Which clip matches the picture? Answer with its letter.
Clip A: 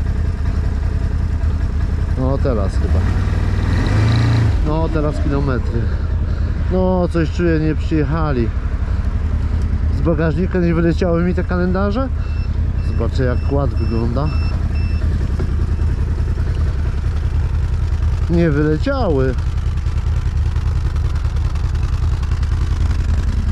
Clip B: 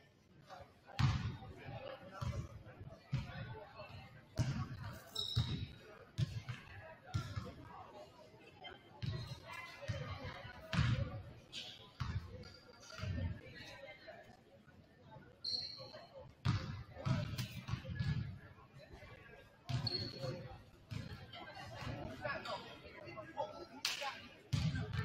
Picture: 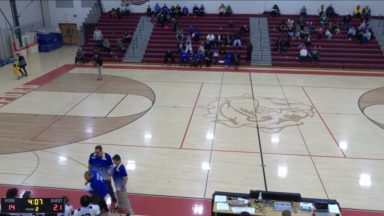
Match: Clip B